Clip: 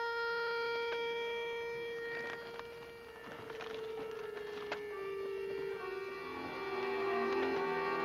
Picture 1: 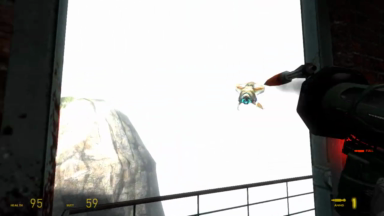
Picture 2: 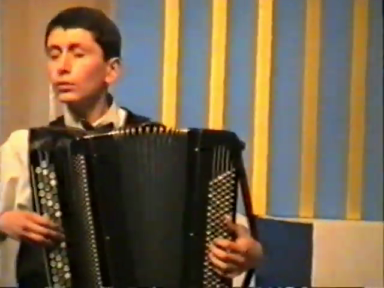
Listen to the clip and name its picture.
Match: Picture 2